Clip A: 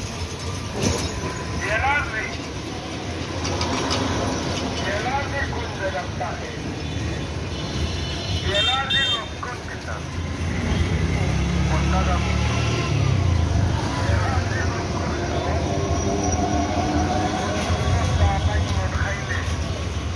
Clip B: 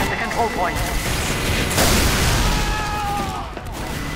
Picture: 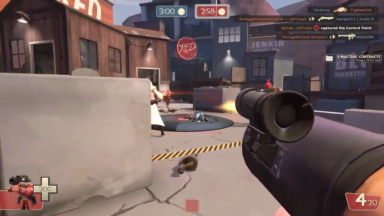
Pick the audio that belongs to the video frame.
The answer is B